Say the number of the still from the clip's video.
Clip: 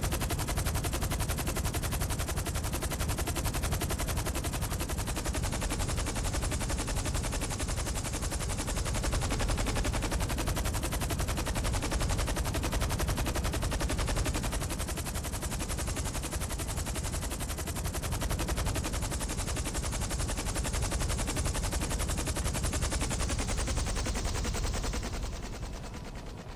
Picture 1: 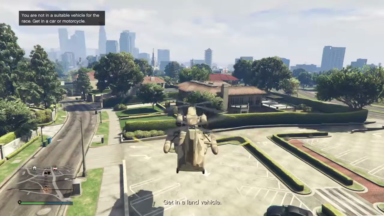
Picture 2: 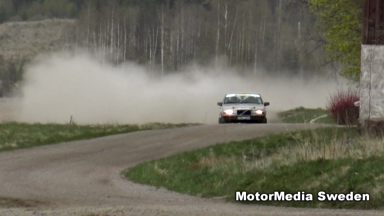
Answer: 1